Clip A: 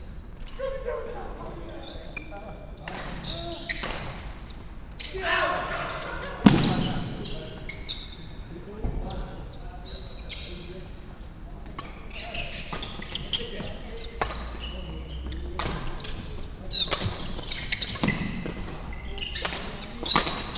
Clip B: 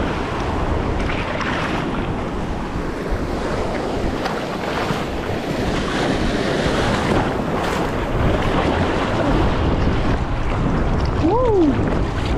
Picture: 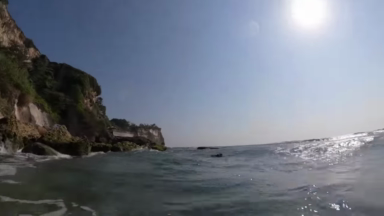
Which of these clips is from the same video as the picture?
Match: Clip B